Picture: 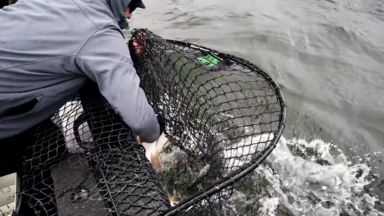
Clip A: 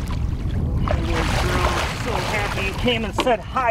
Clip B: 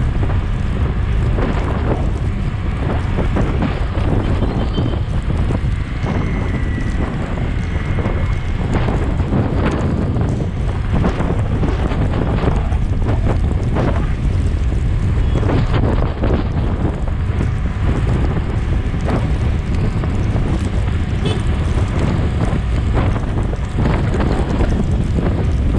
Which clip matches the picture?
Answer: A